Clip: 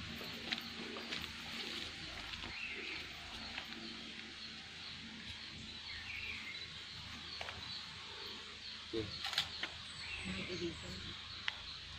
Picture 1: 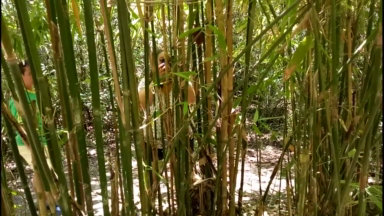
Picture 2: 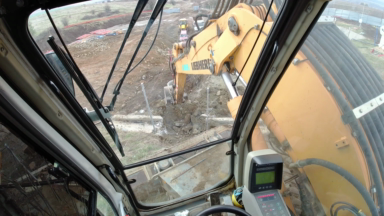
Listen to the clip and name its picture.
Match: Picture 1